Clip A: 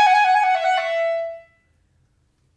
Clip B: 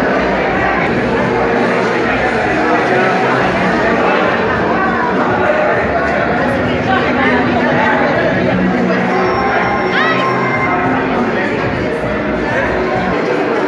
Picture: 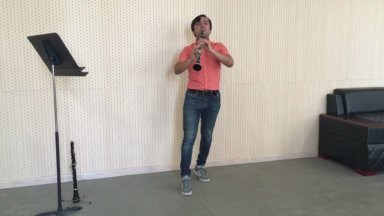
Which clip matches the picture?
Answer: A